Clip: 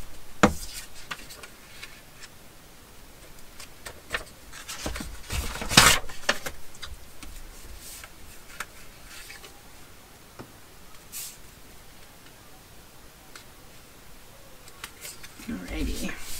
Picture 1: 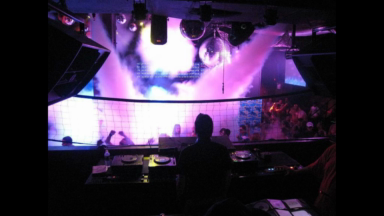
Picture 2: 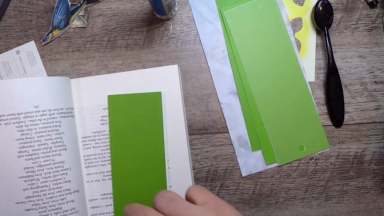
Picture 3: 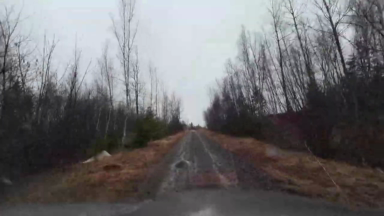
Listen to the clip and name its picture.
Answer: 2